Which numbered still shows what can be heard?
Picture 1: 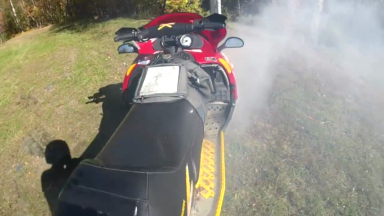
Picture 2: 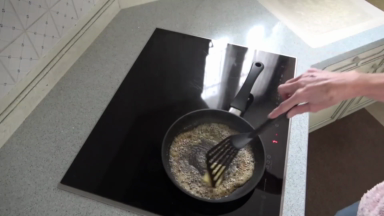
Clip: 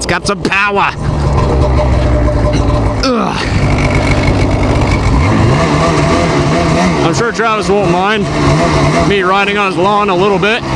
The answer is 1